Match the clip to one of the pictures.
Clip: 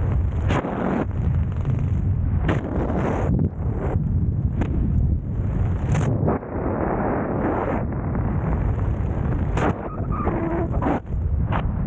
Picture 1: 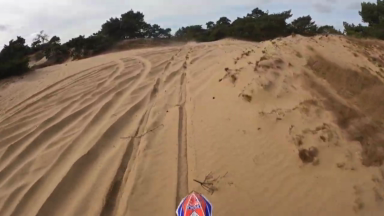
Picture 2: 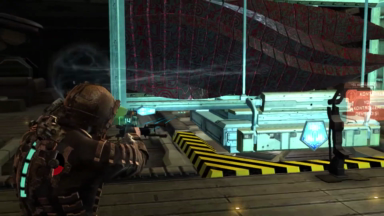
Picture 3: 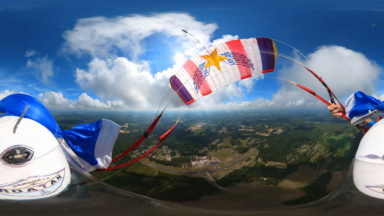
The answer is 3